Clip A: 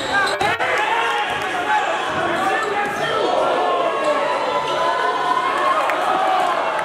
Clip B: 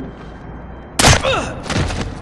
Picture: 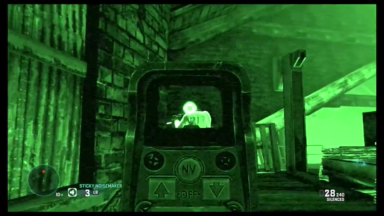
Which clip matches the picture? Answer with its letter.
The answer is B